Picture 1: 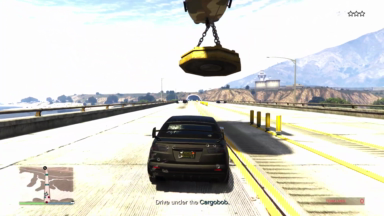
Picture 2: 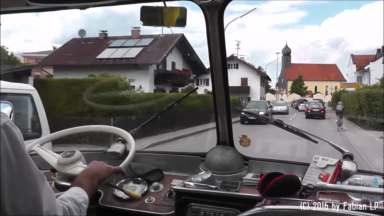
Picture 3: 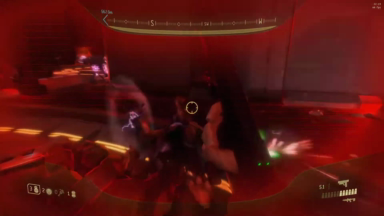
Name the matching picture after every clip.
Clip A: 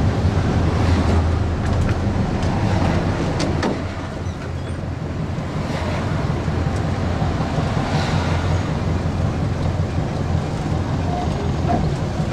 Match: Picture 2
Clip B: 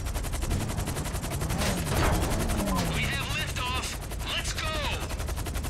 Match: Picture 1